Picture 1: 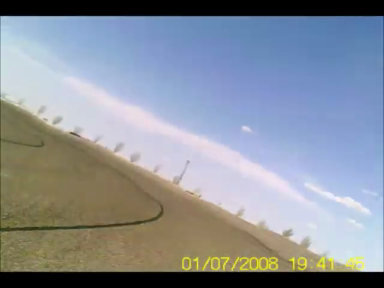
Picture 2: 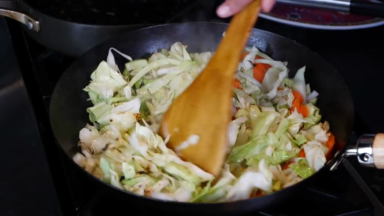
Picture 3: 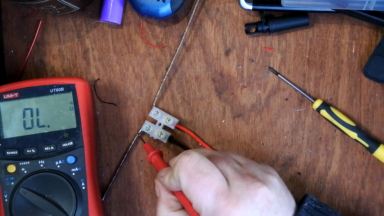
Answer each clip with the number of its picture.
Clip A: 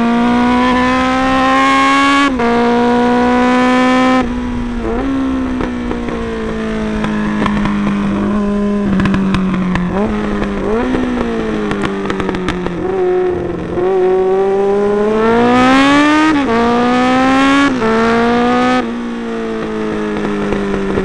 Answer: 1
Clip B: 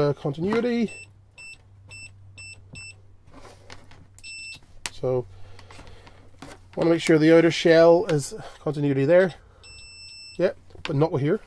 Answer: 3